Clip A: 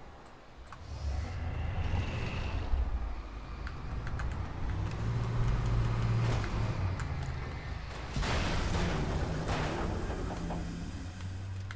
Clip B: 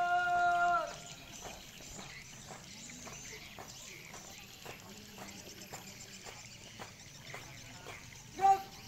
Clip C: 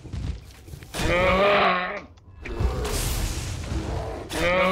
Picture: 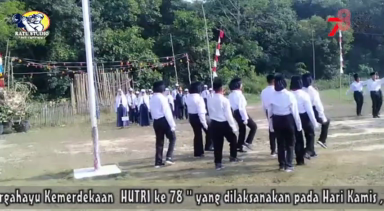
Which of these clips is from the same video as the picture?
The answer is B